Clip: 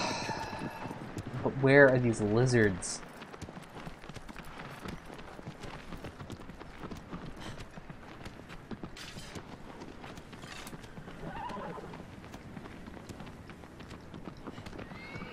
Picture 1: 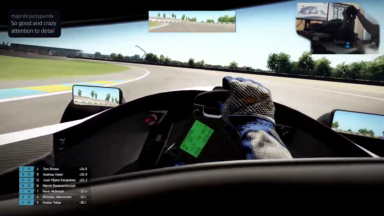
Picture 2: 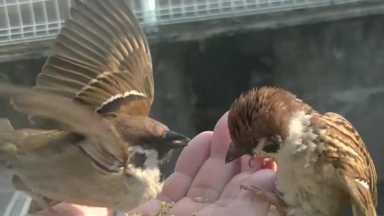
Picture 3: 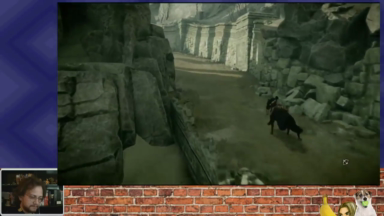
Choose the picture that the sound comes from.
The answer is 3